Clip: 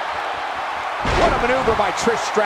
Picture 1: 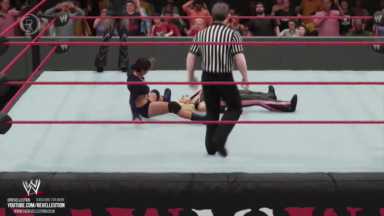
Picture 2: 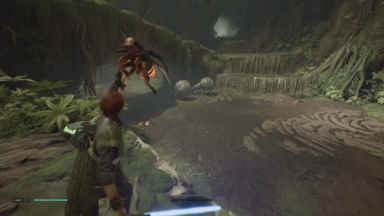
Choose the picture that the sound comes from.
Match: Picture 1